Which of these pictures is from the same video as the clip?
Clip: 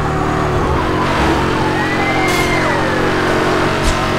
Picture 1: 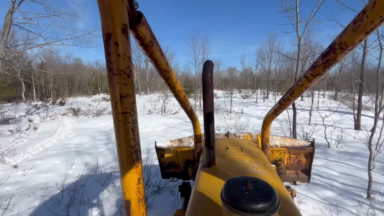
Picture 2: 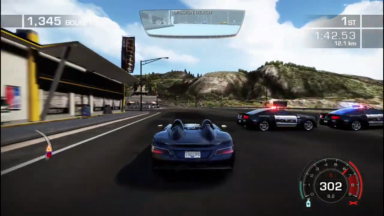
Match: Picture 2